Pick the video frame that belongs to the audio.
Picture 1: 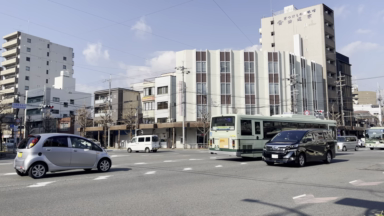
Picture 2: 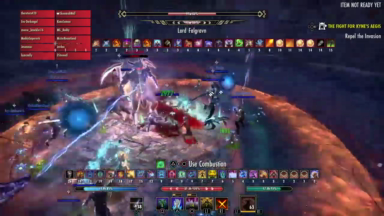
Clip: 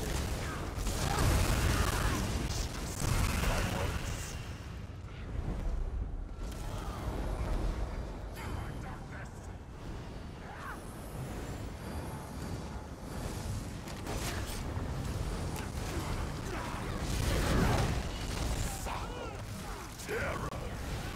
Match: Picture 2